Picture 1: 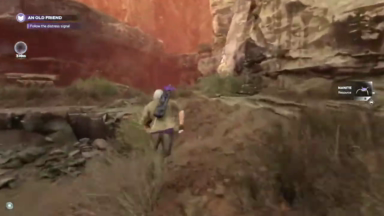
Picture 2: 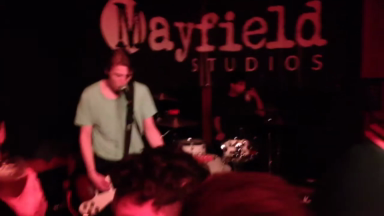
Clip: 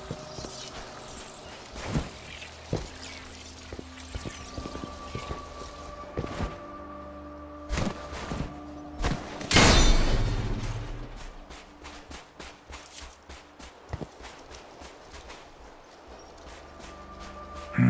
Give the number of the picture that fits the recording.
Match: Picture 1